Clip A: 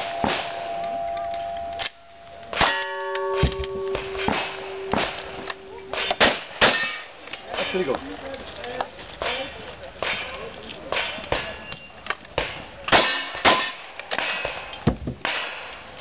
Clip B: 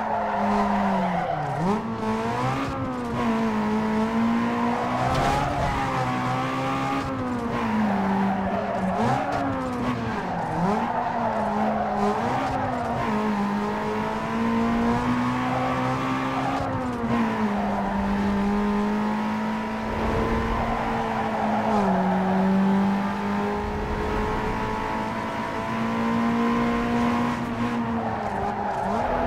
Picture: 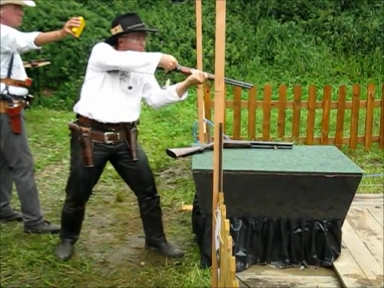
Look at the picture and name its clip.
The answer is A